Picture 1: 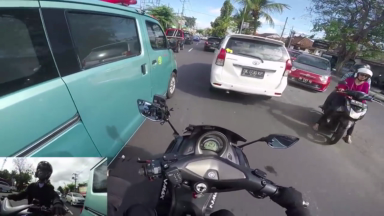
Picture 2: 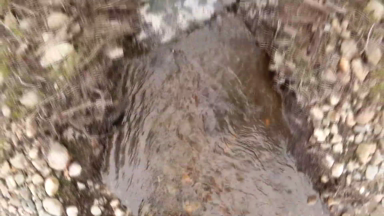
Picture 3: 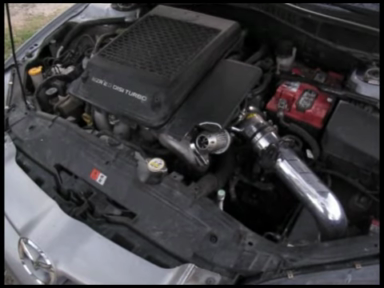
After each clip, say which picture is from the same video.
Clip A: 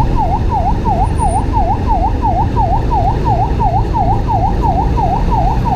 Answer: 1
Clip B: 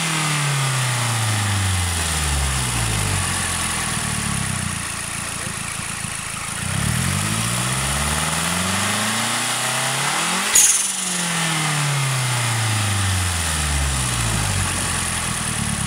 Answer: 3